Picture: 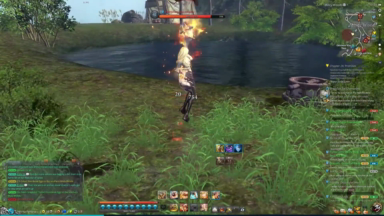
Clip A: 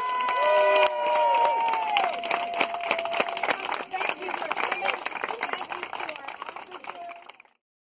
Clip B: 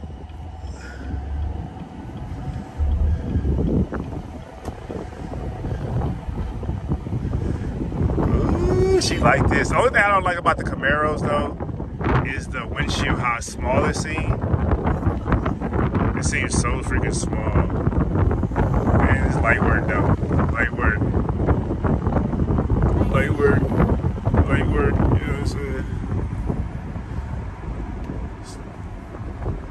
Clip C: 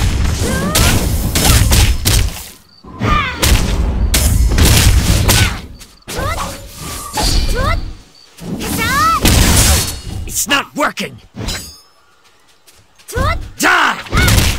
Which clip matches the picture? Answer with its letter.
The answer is C